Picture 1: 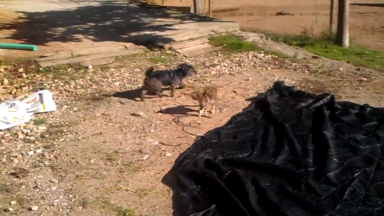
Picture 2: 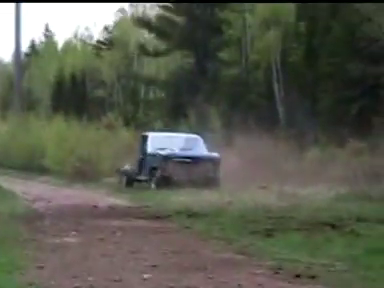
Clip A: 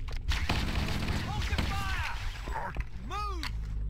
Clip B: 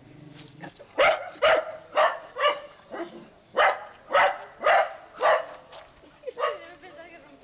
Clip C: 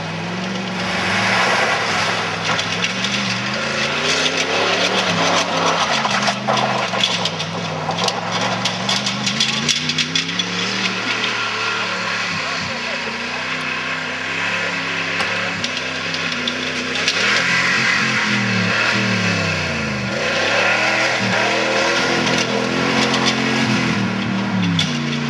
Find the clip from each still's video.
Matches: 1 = B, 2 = C